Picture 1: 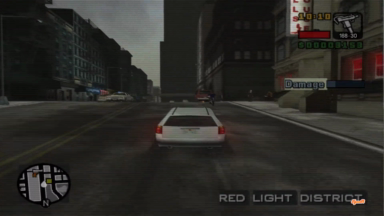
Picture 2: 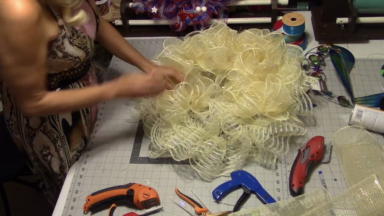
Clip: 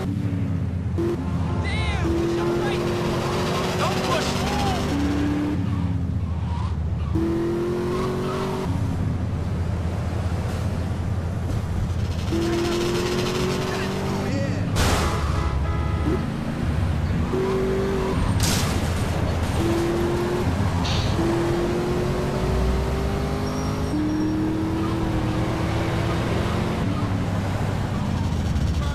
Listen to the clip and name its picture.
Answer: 1